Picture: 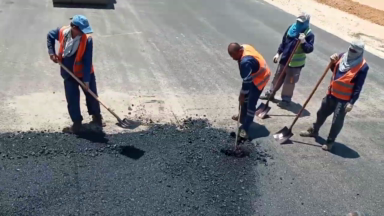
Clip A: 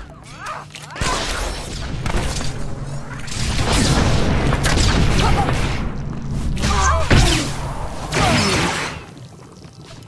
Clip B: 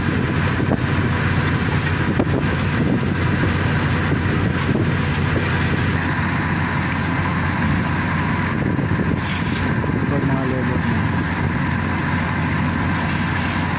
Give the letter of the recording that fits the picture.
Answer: B